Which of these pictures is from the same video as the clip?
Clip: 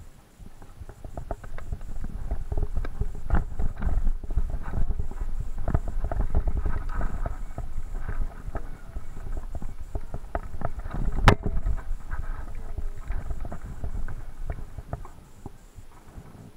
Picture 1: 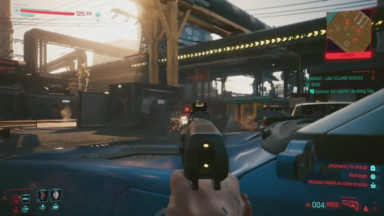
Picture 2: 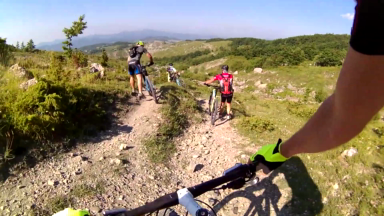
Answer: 2